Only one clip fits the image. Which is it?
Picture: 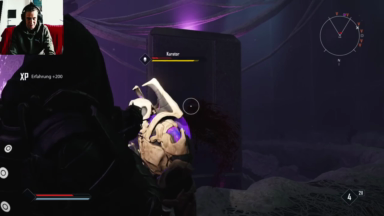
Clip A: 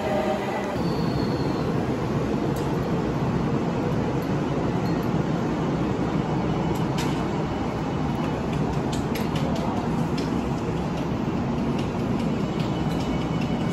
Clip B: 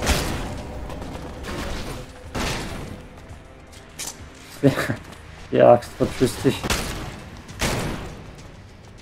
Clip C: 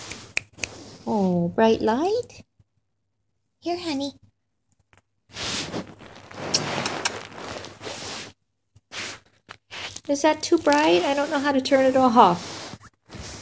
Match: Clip B